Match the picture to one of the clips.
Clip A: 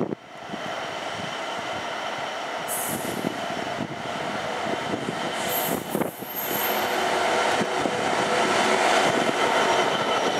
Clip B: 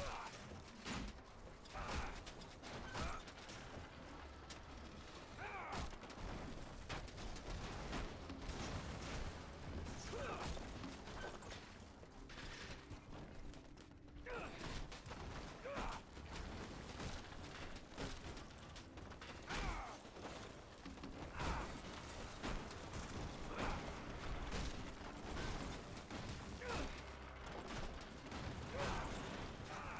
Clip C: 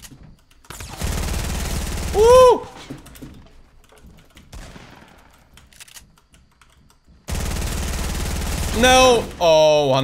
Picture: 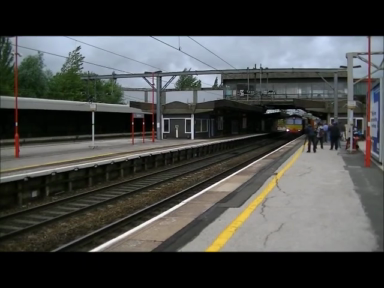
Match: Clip A